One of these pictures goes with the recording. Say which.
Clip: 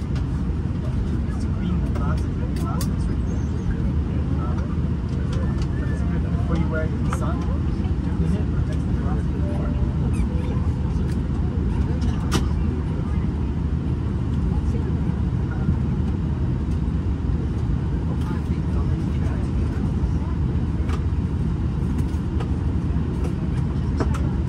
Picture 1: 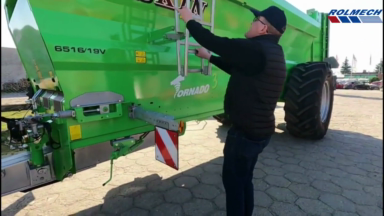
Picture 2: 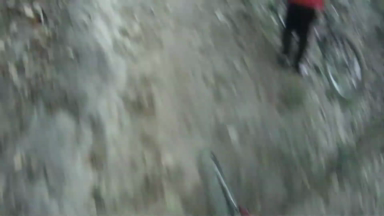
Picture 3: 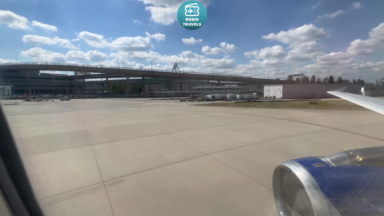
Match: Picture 3